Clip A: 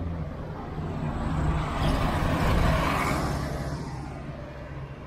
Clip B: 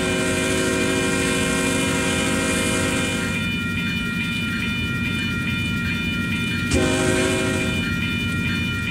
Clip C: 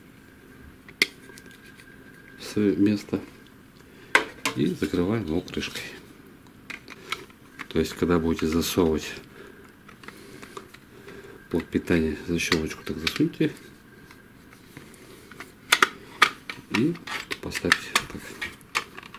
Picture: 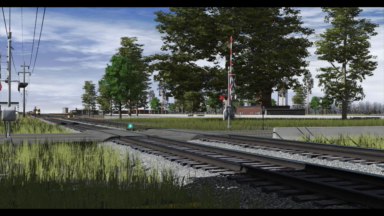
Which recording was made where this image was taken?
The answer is B